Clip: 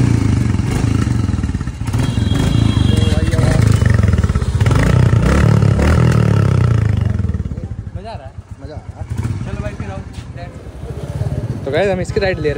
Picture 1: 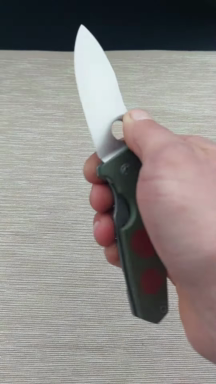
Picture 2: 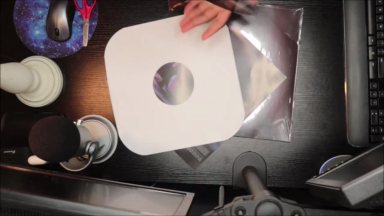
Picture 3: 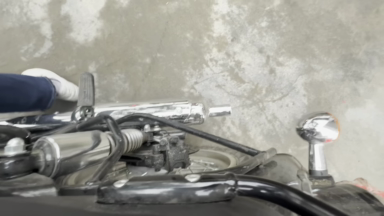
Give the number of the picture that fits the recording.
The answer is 3